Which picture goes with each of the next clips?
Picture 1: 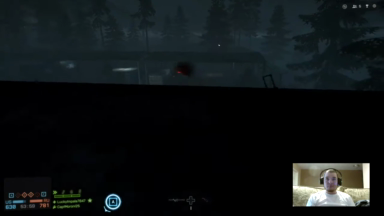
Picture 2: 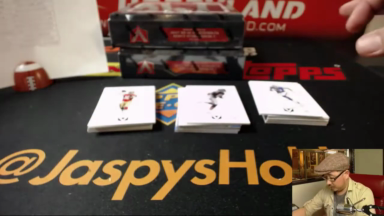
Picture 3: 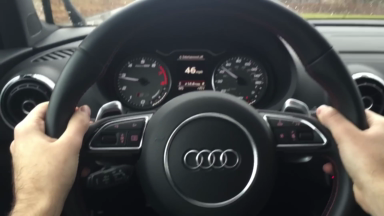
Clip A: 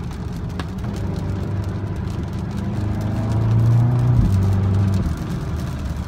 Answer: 3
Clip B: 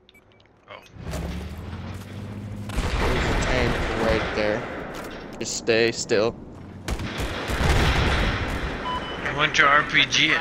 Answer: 1